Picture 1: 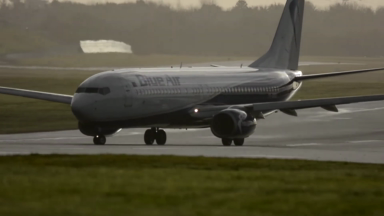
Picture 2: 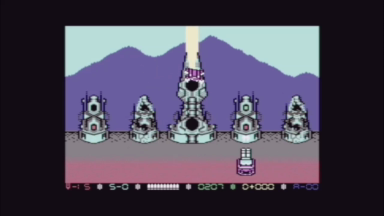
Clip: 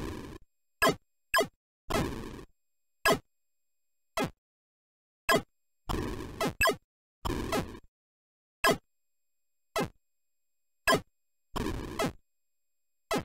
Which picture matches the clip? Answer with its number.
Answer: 2